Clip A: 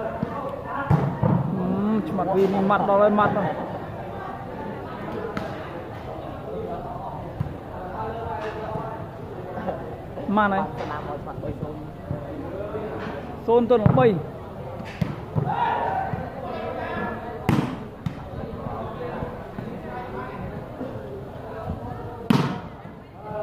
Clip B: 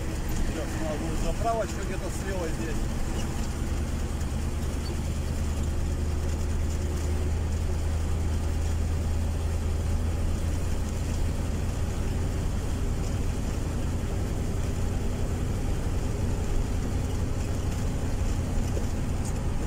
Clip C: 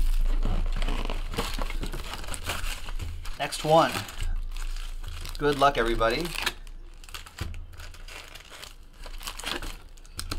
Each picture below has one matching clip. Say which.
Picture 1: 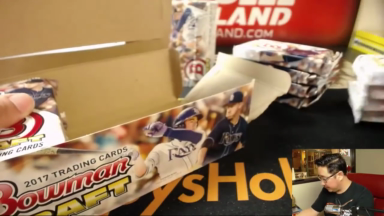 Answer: C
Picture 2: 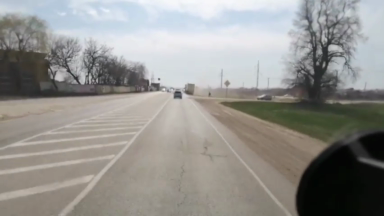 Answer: B